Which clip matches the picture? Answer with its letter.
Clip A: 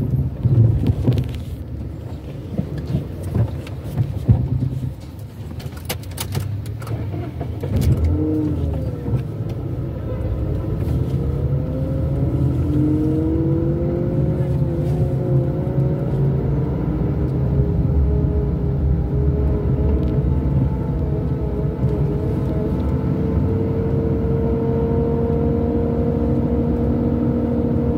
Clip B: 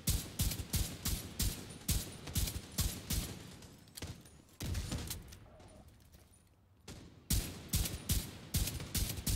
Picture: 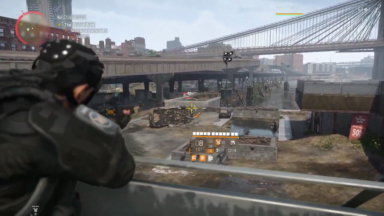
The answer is B